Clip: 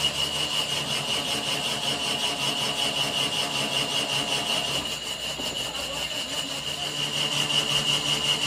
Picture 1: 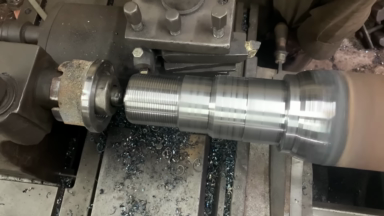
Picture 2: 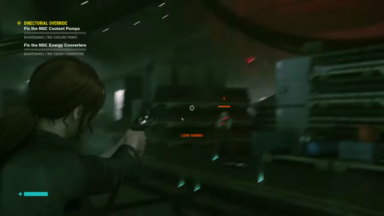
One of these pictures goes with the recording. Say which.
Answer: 1